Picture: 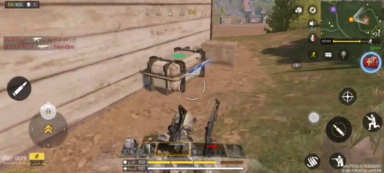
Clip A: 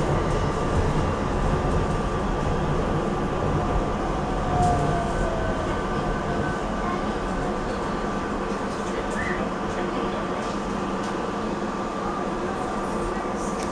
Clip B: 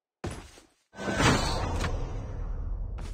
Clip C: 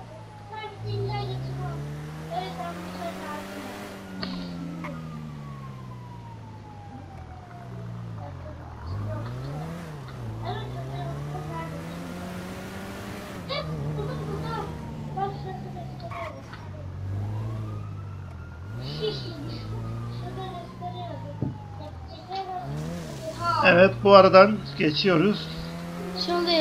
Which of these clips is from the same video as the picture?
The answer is B